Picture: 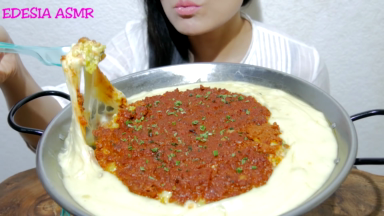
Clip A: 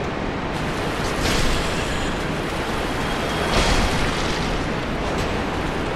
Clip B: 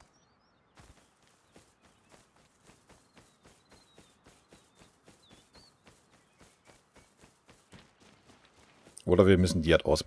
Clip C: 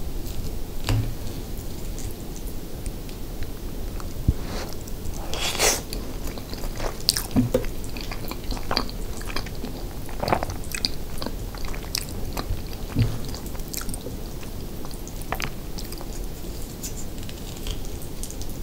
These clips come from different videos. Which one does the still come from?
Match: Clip C